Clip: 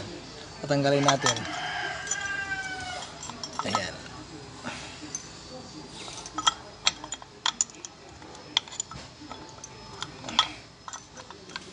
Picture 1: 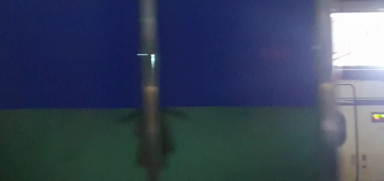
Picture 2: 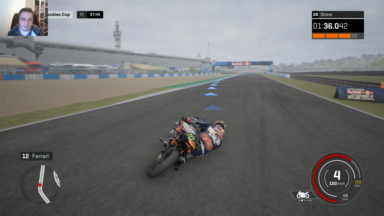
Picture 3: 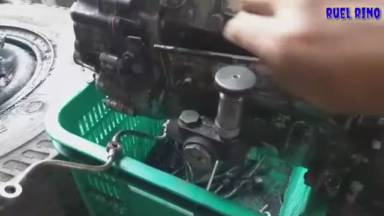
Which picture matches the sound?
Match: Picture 3